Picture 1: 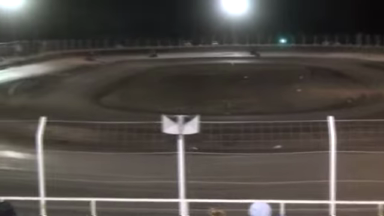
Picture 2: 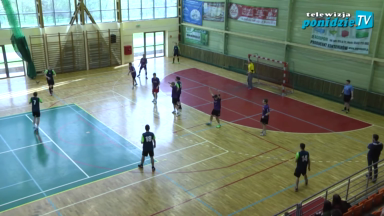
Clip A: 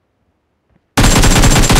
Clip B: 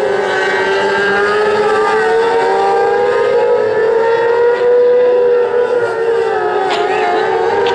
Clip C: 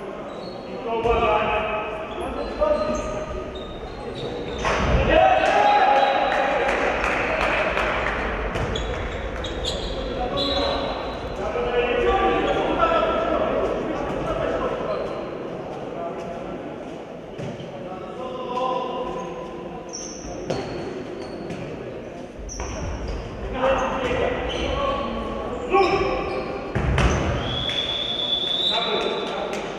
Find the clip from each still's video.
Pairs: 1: B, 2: C